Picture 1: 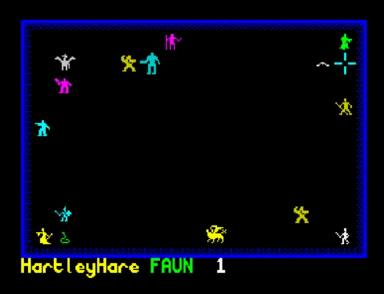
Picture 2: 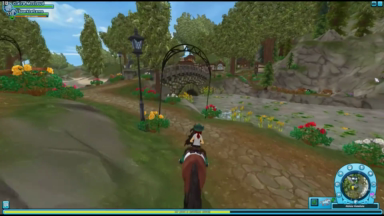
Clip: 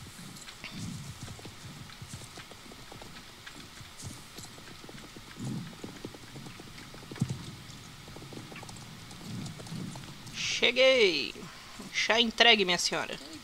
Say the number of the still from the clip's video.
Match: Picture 2